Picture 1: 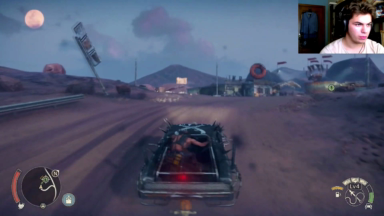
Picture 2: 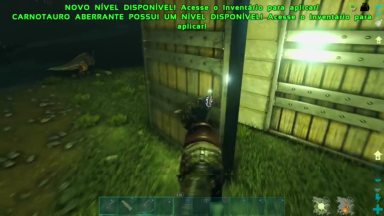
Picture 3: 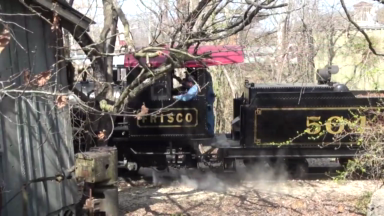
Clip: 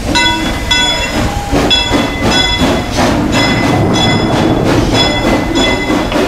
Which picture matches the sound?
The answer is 3